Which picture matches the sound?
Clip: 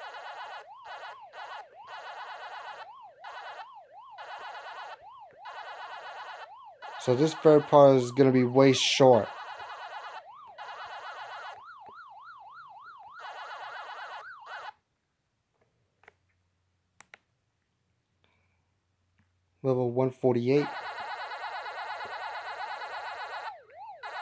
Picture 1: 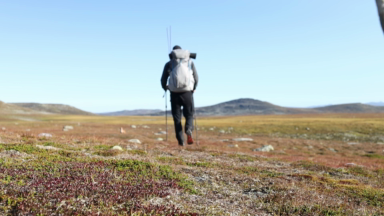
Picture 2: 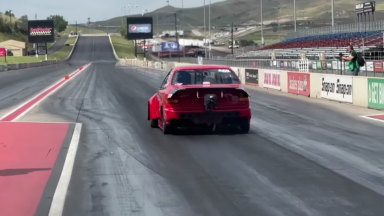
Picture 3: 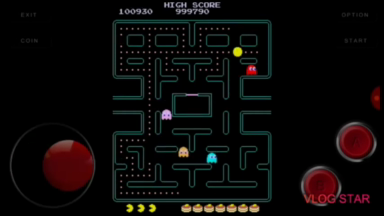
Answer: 3